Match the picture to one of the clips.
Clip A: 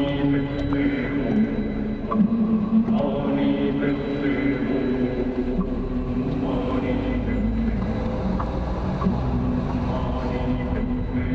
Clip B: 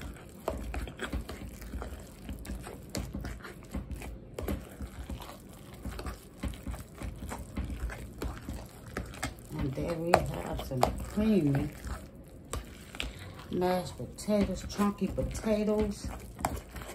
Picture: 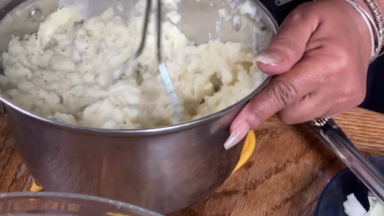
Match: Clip B